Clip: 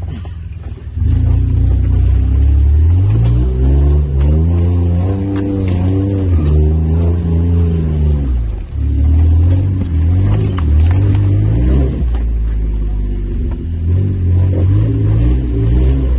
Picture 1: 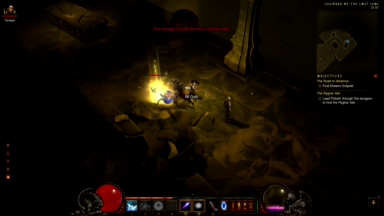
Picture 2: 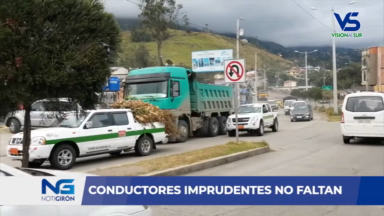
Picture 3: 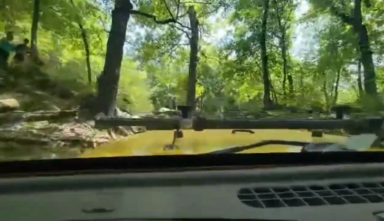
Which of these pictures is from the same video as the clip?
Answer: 3